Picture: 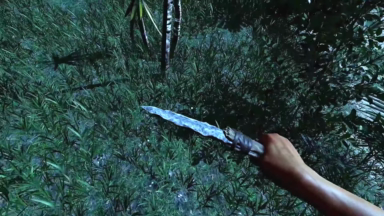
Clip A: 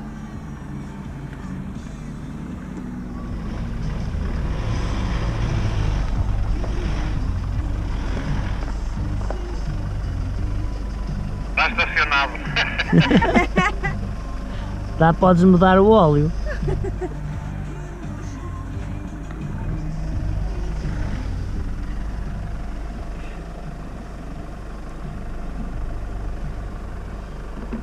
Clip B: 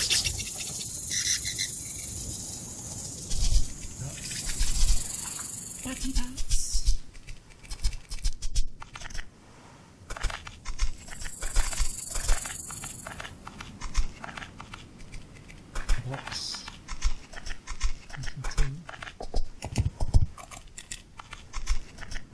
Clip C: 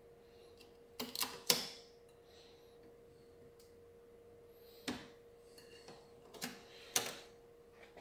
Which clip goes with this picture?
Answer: B